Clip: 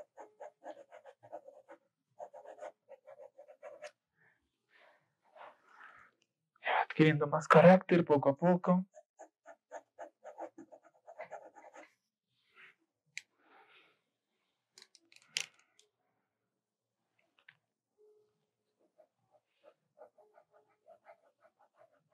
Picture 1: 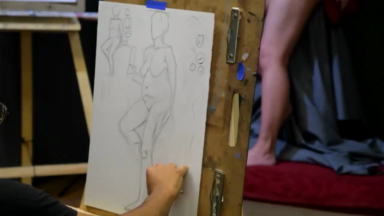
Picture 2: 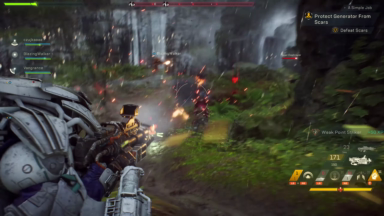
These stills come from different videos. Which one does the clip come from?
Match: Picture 1